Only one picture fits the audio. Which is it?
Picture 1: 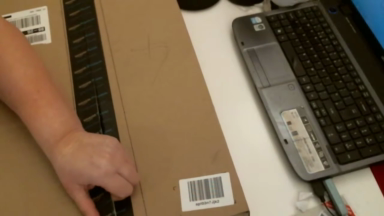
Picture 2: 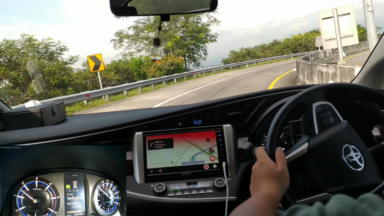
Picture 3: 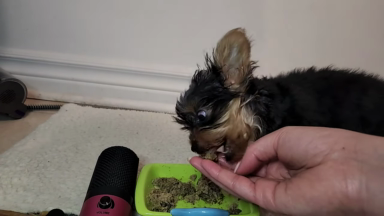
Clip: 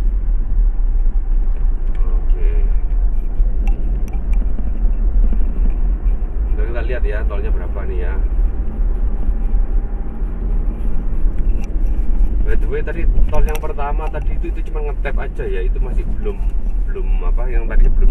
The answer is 2